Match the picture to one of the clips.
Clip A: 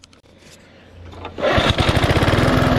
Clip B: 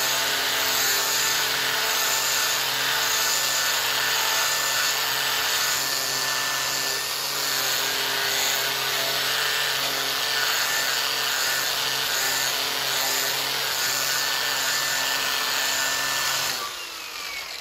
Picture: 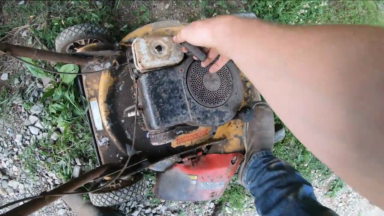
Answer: A